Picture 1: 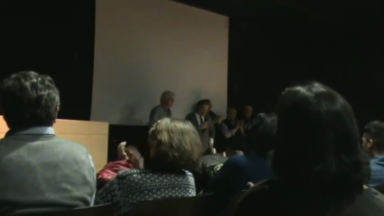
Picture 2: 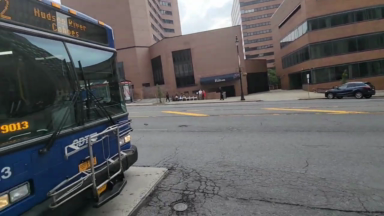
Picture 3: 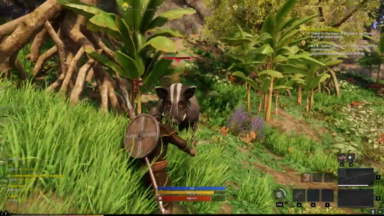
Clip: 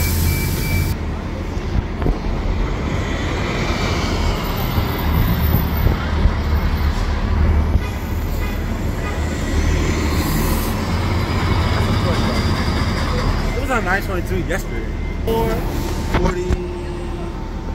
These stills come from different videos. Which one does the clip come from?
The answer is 2